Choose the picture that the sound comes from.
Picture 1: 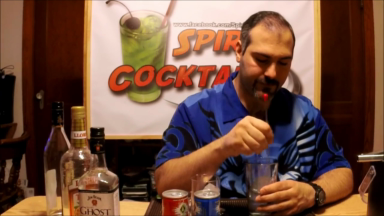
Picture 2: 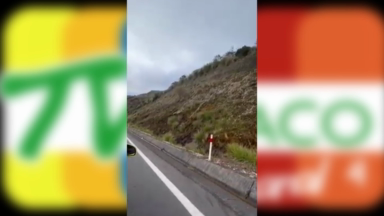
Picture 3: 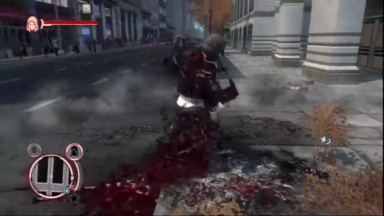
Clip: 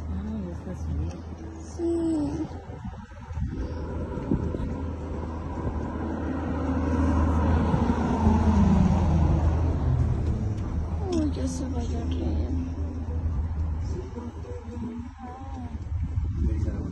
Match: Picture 2